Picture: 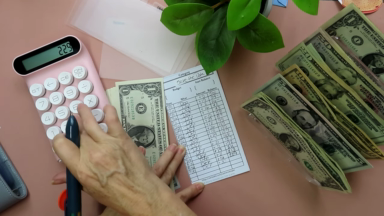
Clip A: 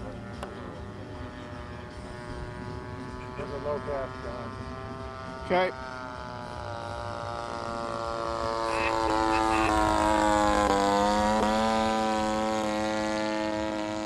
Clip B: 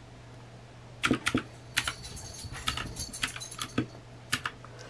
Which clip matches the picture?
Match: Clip B